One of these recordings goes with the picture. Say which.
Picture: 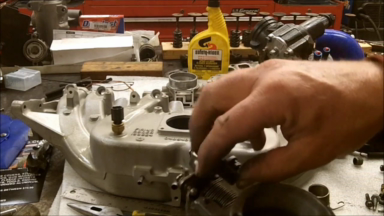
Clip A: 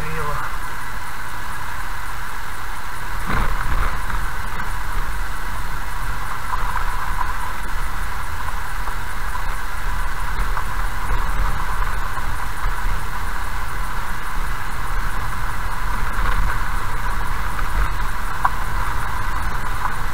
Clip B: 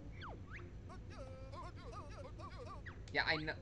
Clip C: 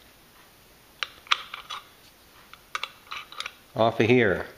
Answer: C